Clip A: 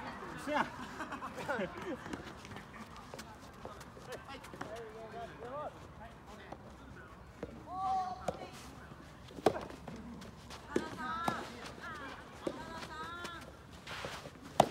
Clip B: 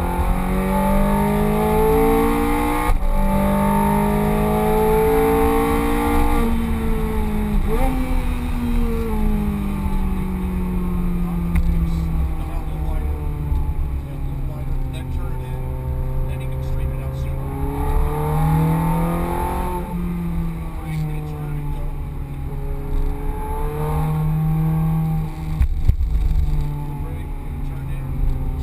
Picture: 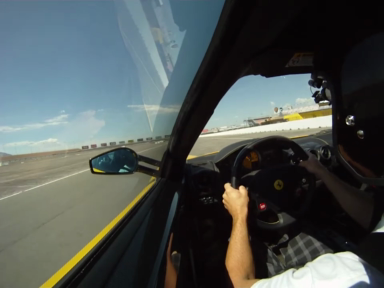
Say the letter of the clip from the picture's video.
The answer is B